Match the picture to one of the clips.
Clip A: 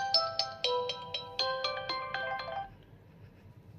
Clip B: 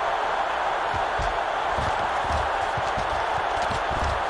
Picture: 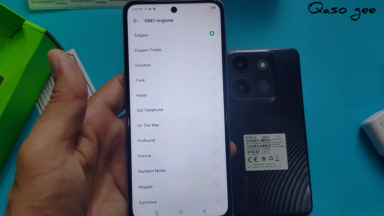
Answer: A